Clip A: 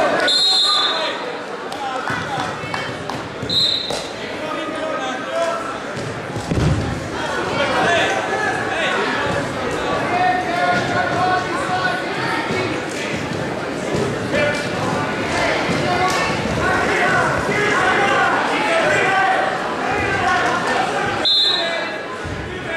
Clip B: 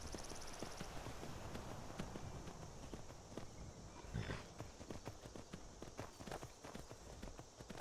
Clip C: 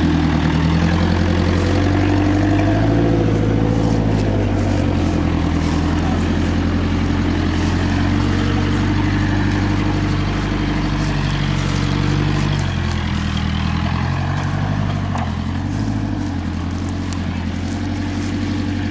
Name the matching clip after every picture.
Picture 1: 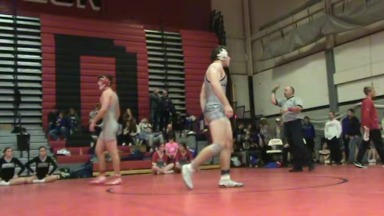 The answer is A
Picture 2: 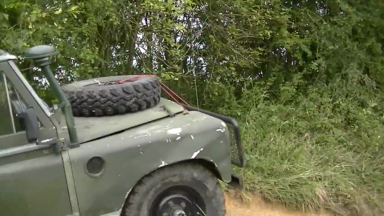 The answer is C